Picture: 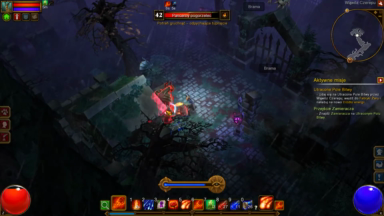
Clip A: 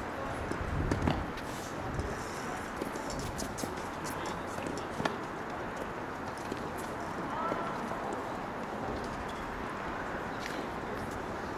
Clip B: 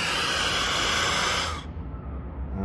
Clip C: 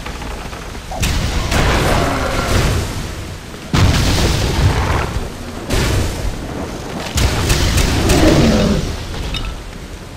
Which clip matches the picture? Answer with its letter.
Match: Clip C